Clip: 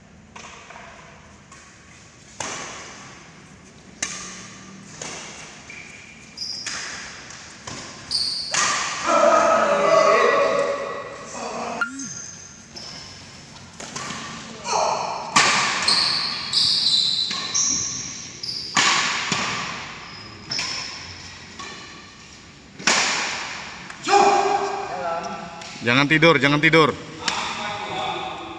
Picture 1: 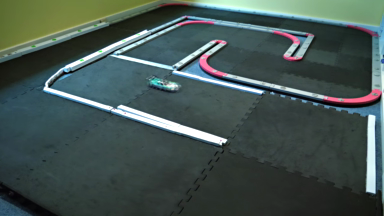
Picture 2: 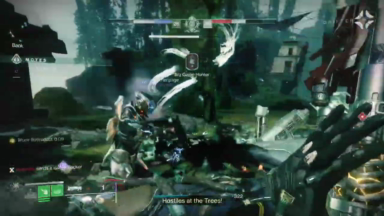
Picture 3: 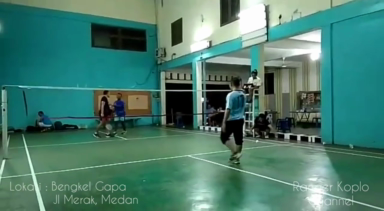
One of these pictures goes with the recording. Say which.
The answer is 3